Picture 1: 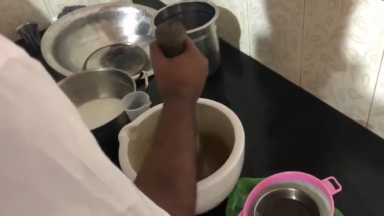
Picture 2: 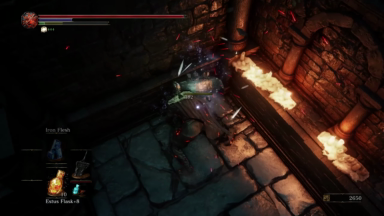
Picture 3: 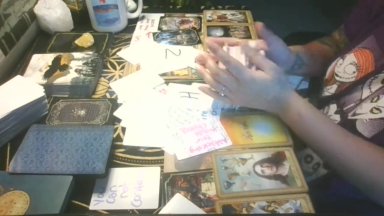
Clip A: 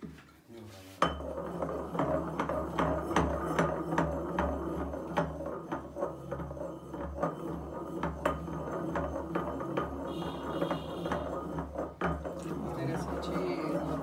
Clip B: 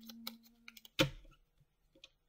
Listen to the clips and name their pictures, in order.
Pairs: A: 1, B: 3